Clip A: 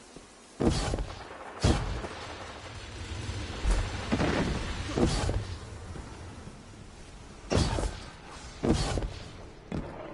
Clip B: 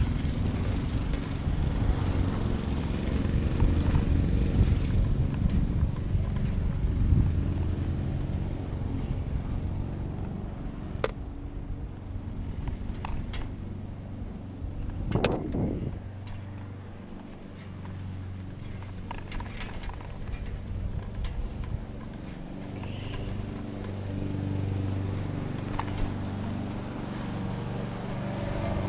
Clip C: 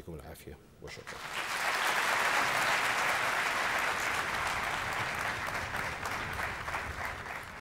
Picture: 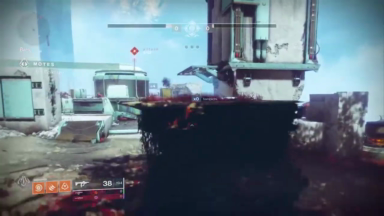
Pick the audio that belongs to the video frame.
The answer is A